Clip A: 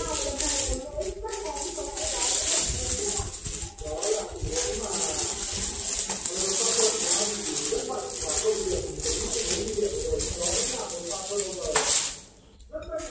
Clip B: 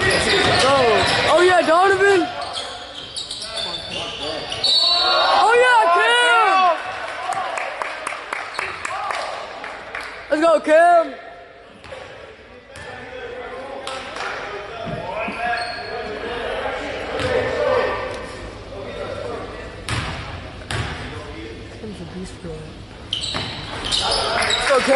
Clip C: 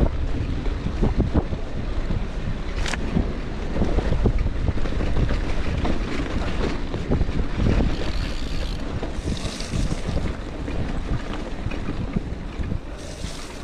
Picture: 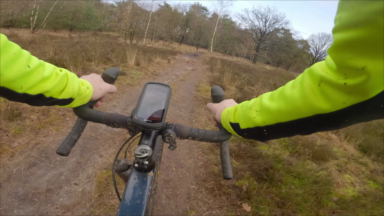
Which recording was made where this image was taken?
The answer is C